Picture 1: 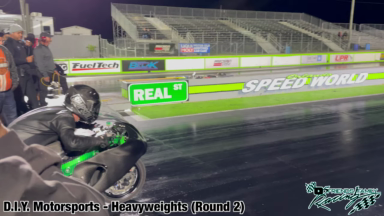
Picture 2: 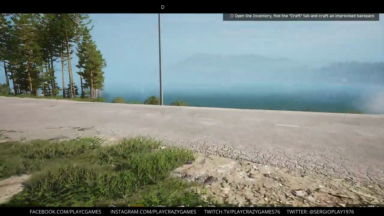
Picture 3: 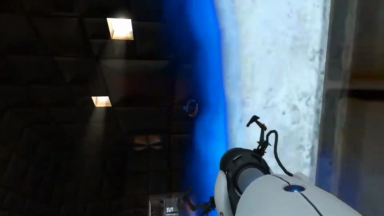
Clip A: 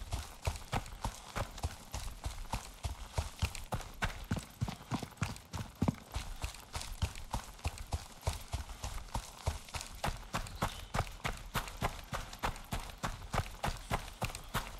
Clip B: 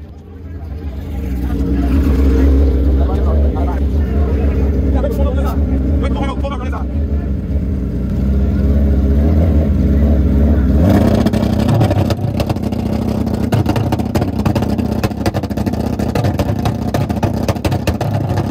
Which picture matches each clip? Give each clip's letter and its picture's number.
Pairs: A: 2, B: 1